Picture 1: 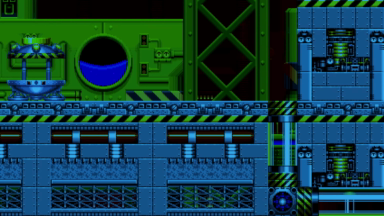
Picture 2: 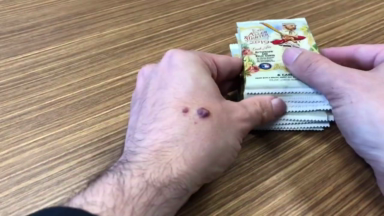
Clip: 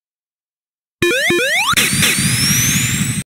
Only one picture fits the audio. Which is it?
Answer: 1